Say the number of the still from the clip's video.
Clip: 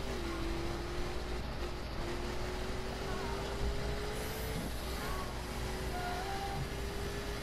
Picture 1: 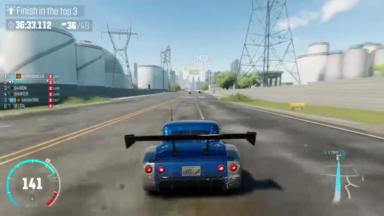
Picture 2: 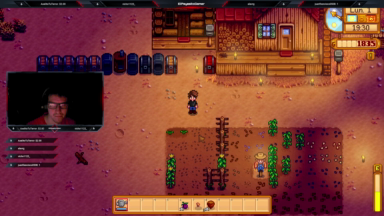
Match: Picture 1